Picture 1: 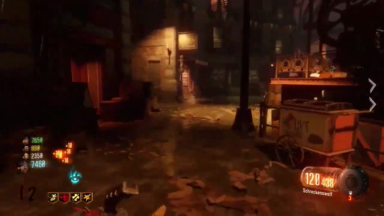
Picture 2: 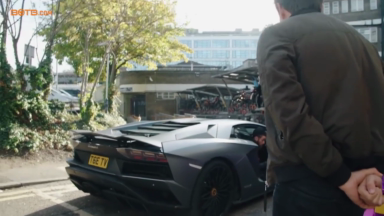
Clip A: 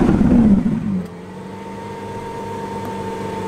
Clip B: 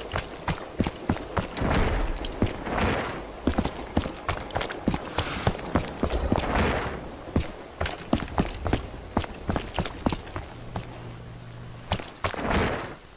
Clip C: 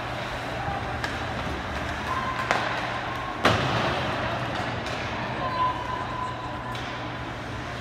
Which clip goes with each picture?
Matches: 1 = B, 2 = A